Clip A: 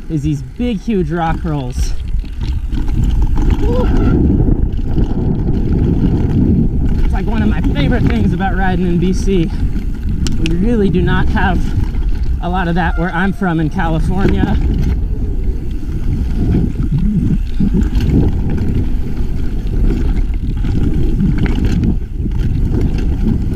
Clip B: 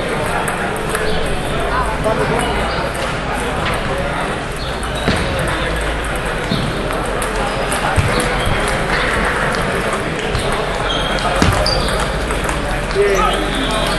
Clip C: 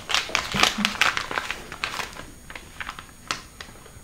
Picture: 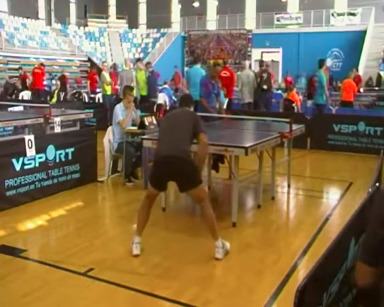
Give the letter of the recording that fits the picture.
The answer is B